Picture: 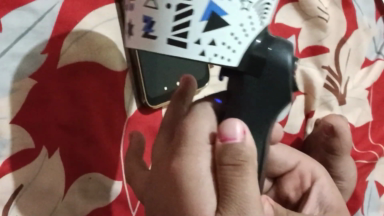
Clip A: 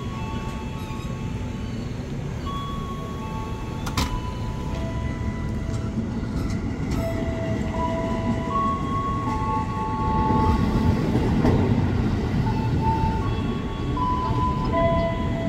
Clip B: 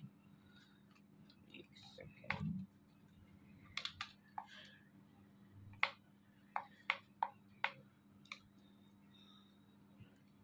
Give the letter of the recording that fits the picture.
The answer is B